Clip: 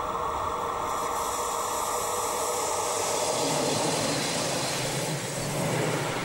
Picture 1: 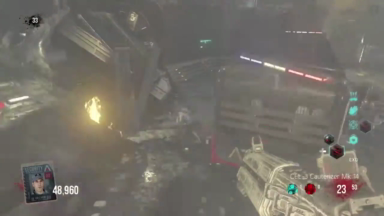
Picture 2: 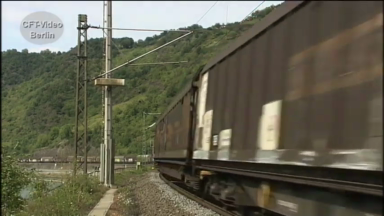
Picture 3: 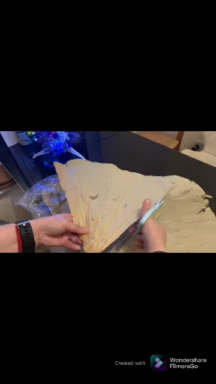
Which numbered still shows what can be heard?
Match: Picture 2